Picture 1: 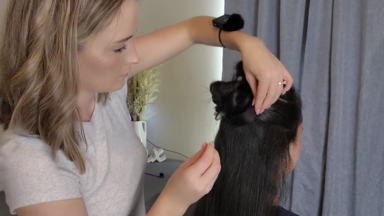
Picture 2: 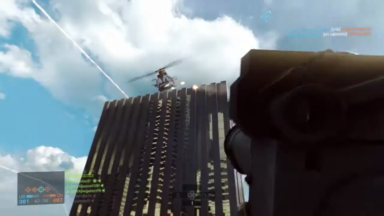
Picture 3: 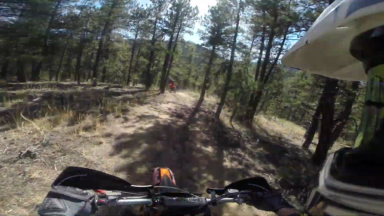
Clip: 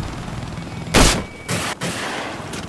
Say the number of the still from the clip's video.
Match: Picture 2